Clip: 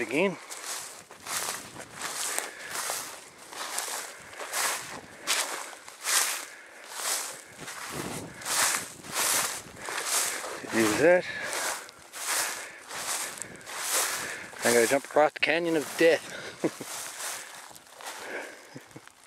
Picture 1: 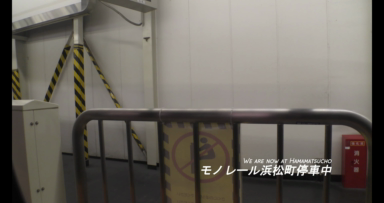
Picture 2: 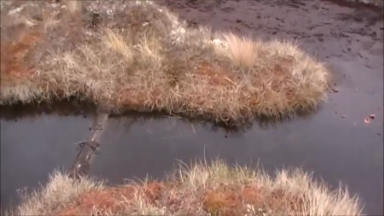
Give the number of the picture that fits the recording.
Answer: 2